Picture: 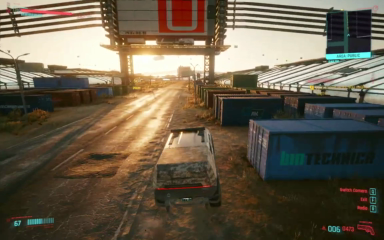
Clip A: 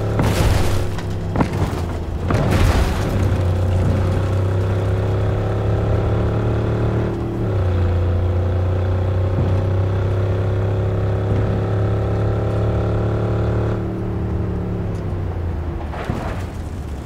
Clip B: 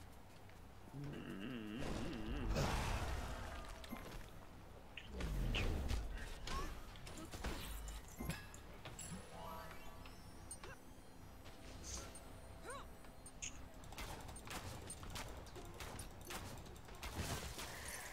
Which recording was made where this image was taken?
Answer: A